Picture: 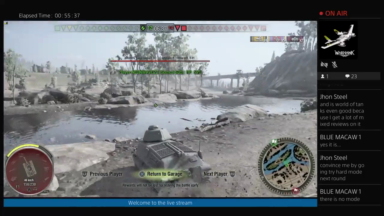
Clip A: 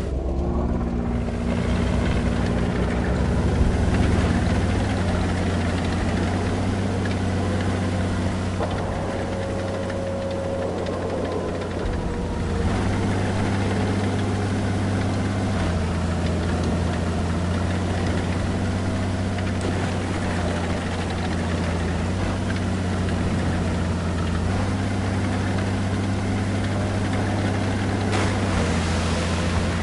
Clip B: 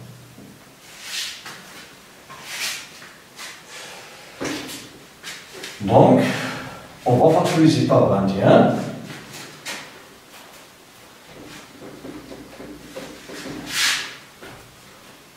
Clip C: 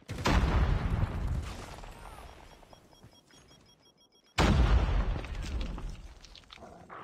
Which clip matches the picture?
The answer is A